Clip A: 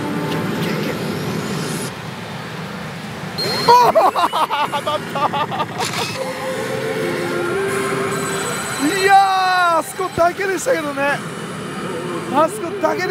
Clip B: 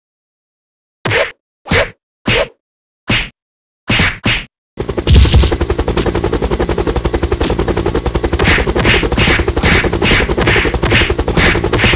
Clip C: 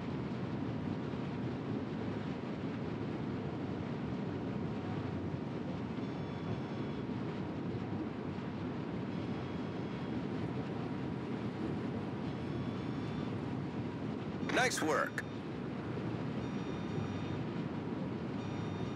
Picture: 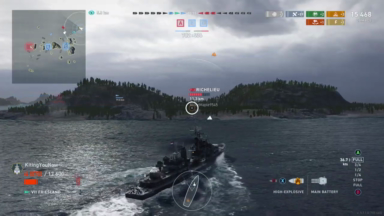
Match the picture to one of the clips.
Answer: C